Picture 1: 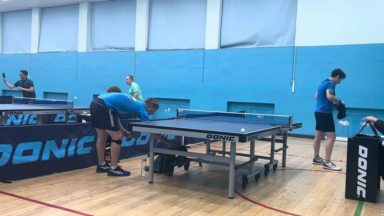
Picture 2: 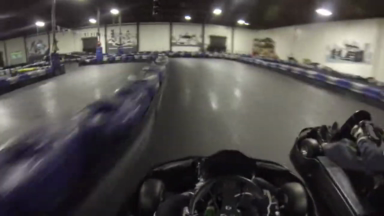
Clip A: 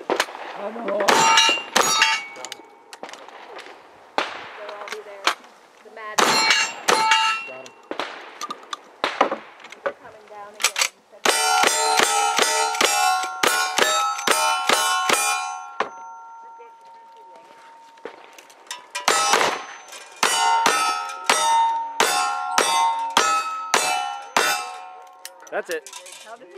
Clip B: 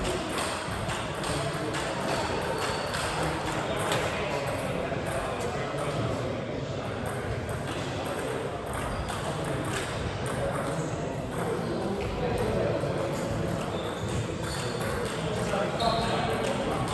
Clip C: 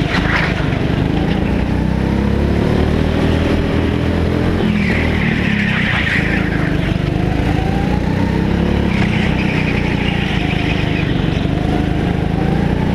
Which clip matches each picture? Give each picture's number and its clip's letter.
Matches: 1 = B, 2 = C